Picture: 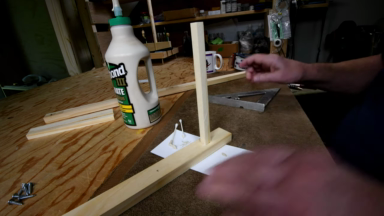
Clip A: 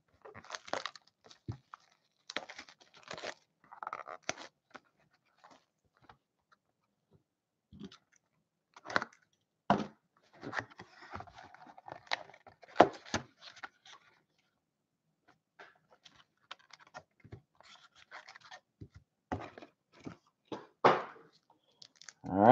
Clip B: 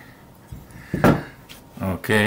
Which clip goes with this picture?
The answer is B